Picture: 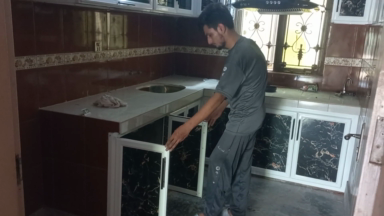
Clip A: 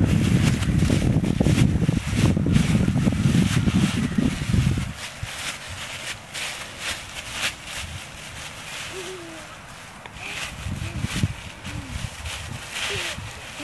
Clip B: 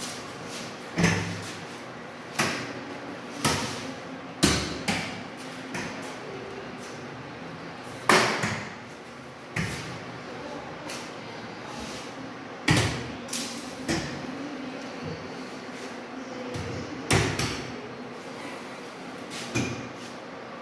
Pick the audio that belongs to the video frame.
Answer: B